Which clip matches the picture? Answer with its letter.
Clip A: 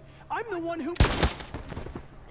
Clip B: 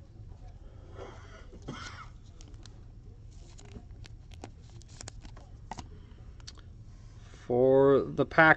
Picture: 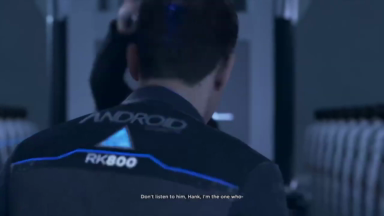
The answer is A